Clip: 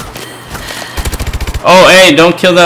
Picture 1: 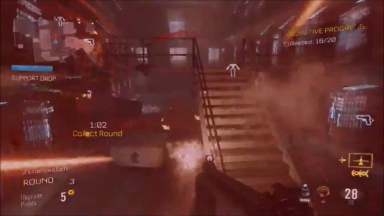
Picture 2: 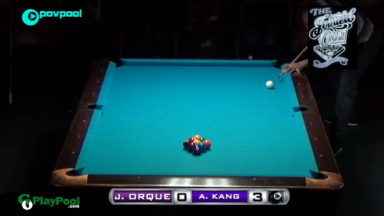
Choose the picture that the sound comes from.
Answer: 1